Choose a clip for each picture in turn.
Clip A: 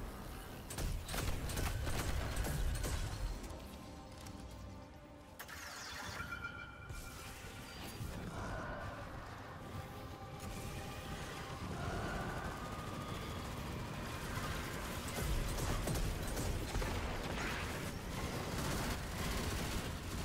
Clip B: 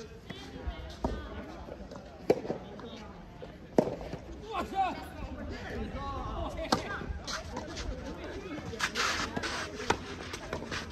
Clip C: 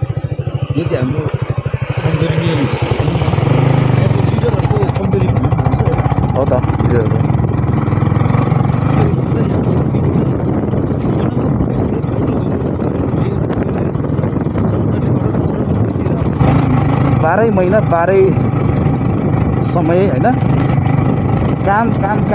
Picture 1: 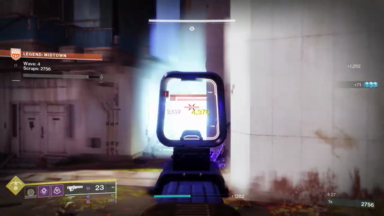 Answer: A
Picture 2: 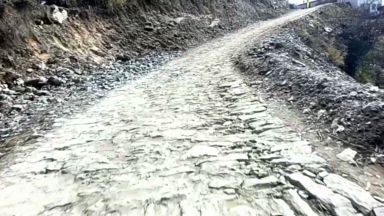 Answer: C